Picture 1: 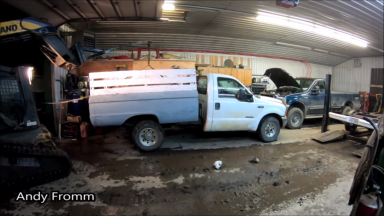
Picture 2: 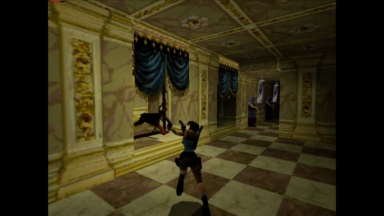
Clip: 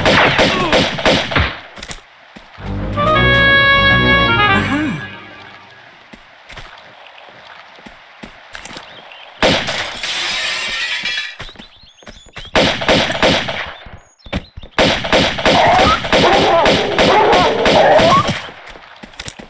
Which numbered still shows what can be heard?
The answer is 2